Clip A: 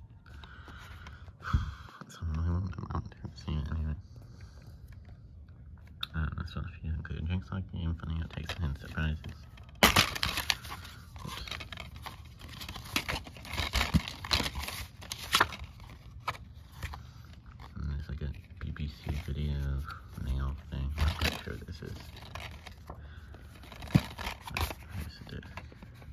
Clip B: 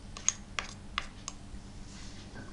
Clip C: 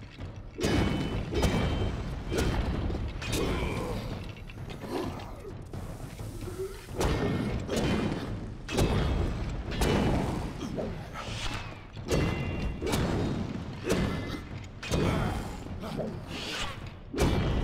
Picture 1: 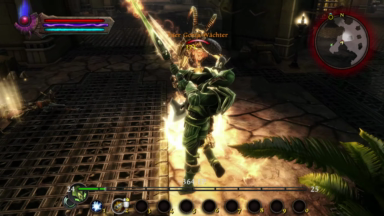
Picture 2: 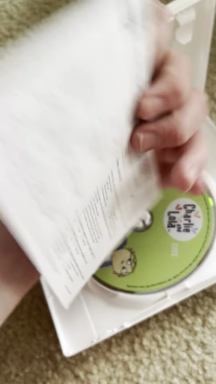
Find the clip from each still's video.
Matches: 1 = C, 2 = A